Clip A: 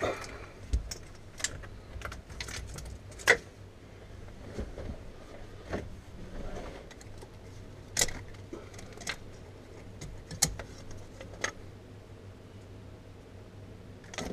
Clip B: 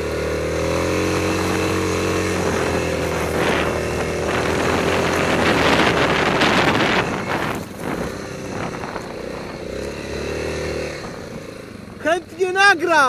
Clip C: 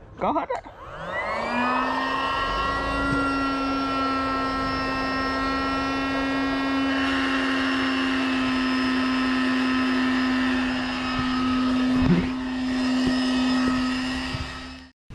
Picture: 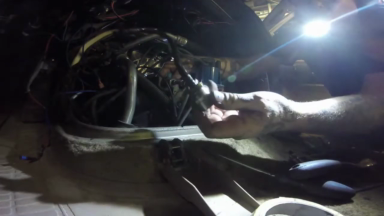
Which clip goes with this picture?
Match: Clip A